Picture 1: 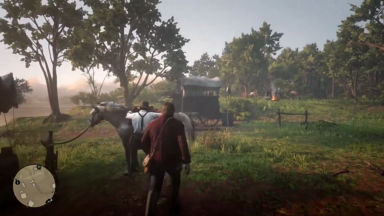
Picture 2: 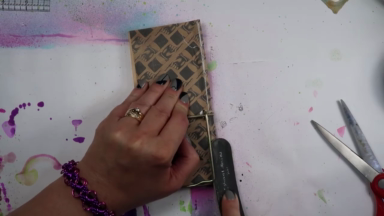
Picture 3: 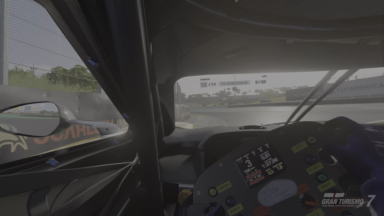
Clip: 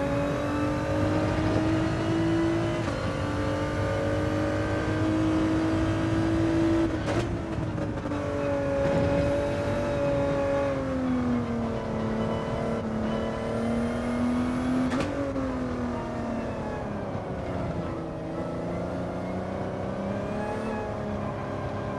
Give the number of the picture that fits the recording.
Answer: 3